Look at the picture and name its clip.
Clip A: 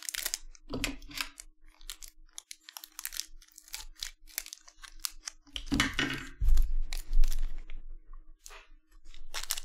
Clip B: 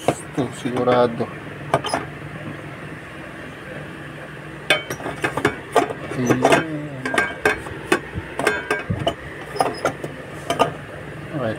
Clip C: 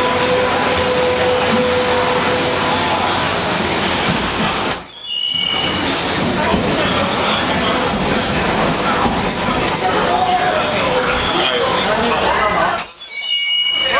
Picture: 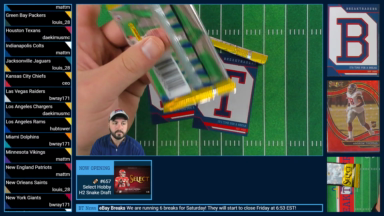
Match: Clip A